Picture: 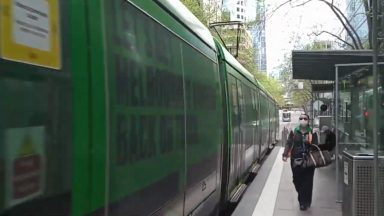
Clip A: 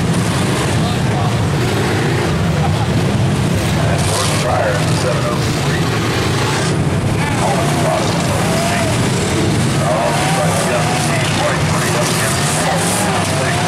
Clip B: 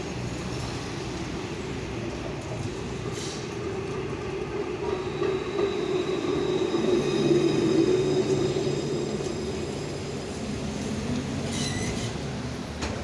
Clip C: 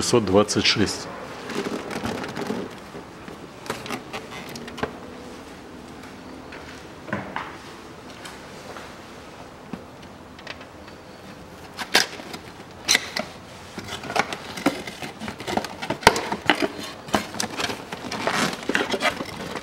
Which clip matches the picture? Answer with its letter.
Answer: B